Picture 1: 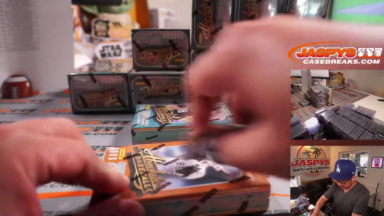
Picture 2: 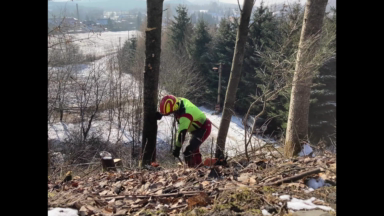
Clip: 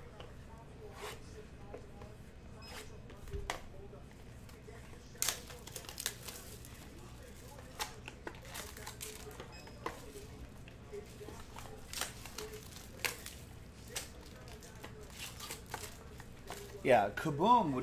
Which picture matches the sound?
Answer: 1